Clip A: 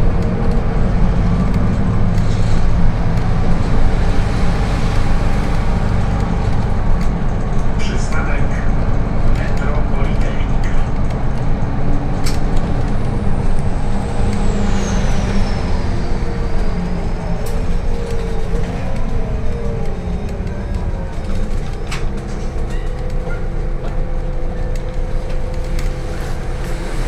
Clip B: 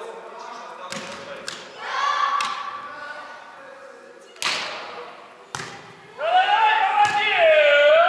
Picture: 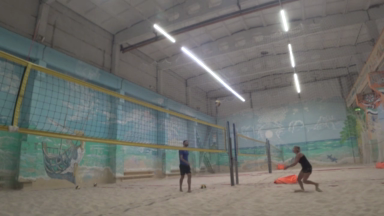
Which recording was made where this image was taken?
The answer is B